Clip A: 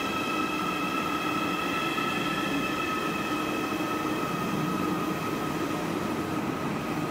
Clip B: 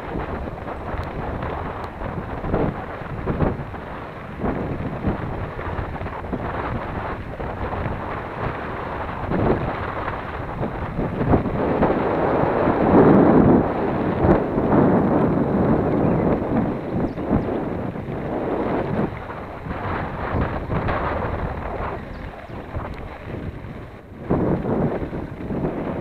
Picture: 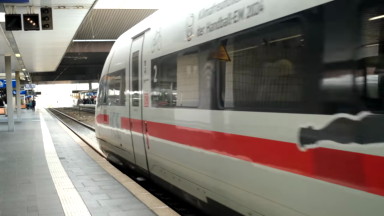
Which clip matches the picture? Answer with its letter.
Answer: A